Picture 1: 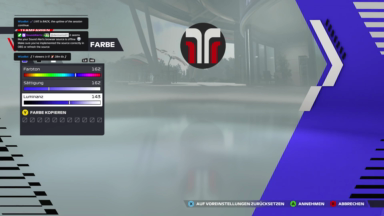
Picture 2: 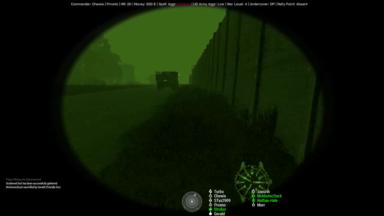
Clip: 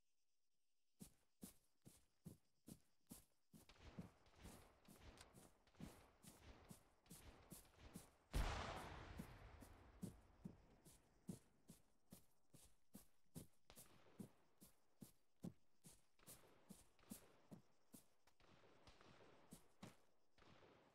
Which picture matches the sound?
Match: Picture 2